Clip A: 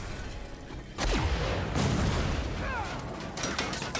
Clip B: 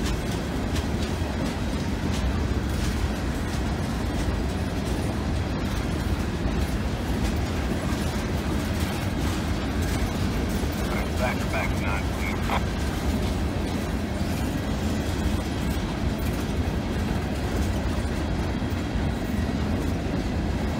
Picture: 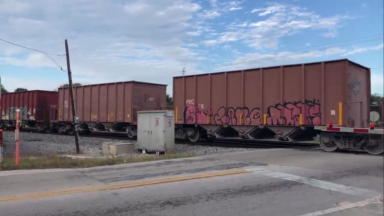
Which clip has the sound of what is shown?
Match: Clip B